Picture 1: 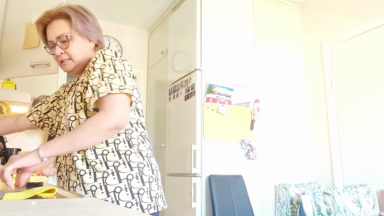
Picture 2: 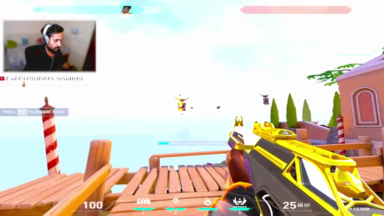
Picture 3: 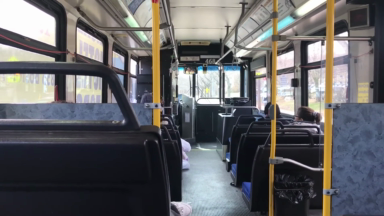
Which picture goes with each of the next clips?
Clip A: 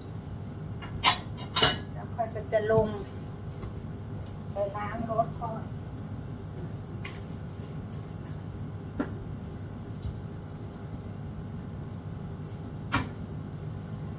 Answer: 1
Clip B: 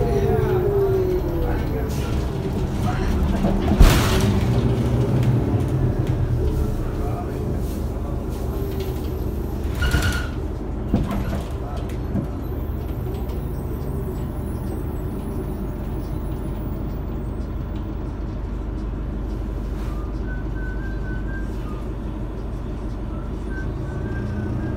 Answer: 3